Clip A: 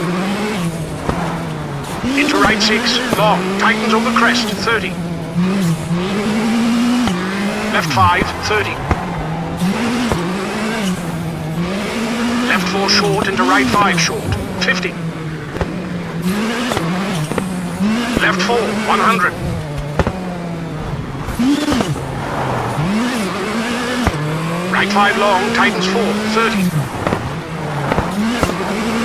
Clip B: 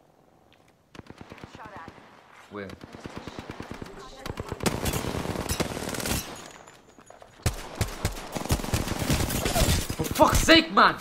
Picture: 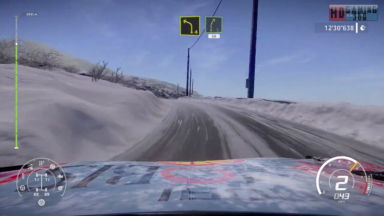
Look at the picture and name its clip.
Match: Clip A